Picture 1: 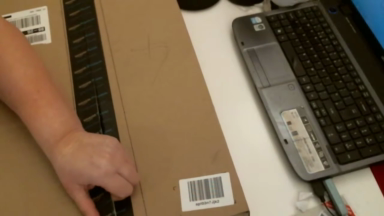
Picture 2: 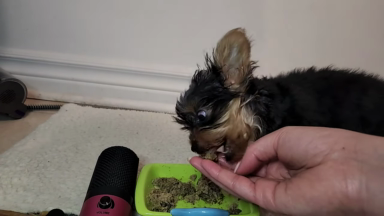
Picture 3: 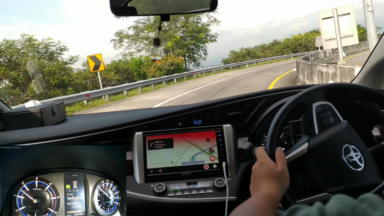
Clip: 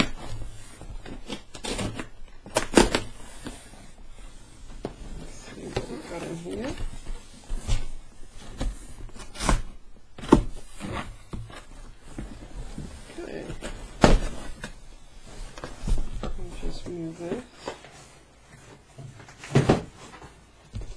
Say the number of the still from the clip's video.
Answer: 1